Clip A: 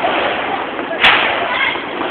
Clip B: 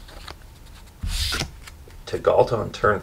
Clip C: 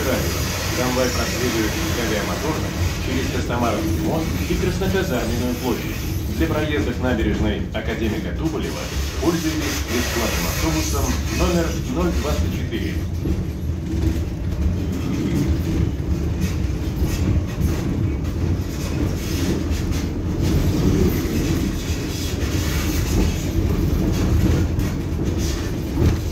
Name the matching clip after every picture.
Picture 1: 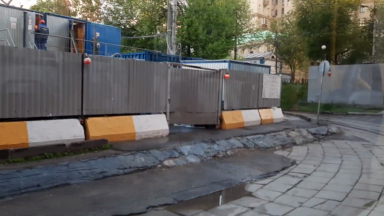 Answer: C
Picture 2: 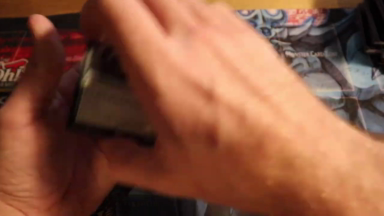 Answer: B